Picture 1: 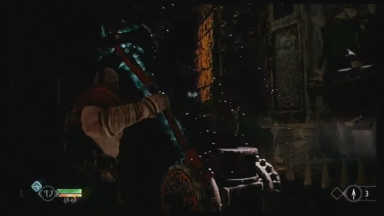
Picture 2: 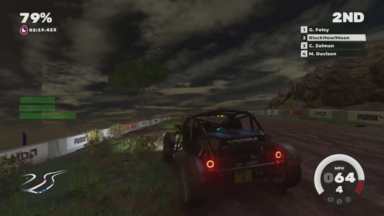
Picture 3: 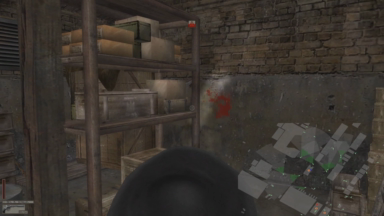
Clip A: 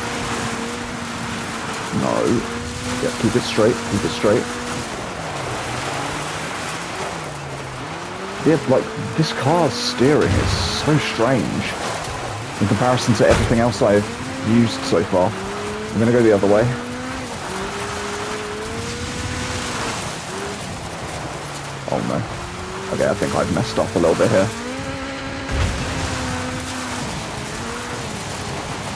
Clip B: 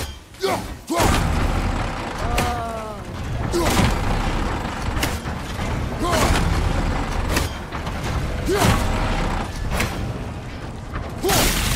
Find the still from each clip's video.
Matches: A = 2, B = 1